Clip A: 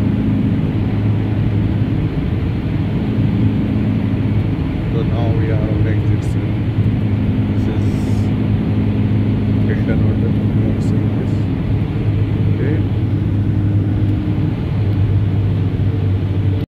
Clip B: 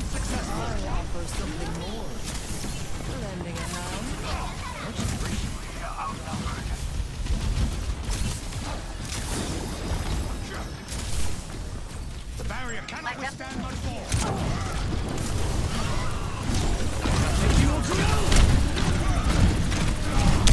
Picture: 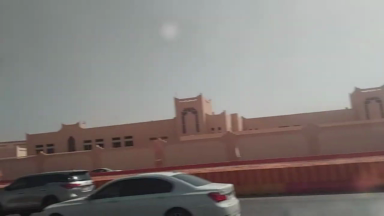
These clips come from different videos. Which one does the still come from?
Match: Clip A